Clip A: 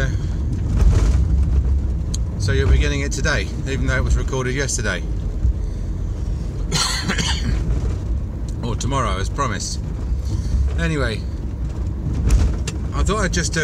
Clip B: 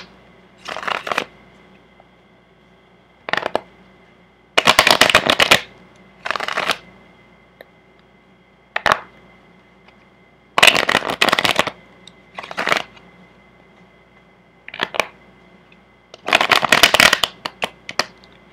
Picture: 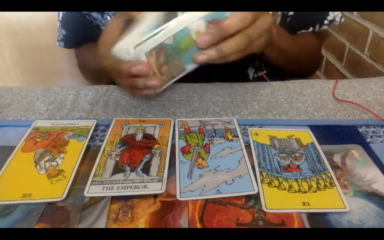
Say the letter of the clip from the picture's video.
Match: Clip B